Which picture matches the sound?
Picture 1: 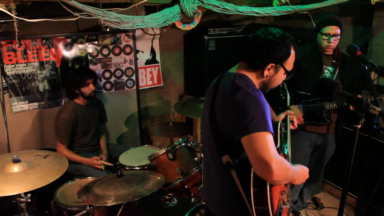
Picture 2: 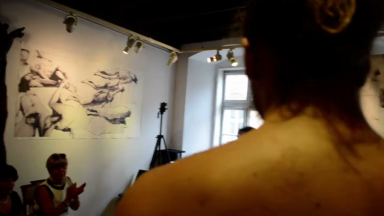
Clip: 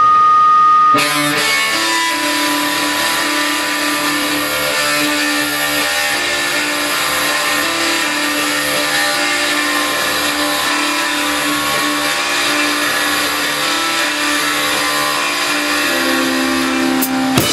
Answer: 1